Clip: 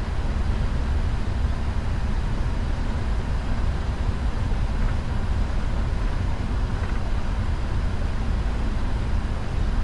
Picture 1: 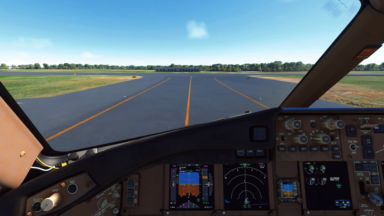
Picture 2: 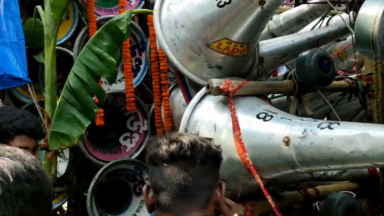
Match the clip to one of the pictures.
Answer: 1